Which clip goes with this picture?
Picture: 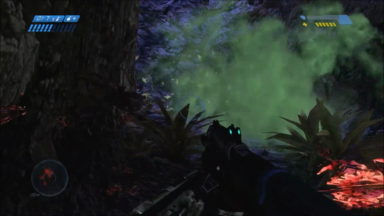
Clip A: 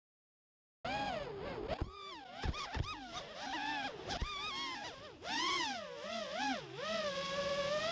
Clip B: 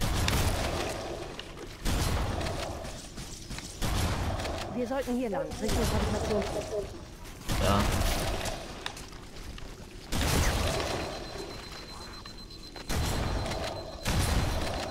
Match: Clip B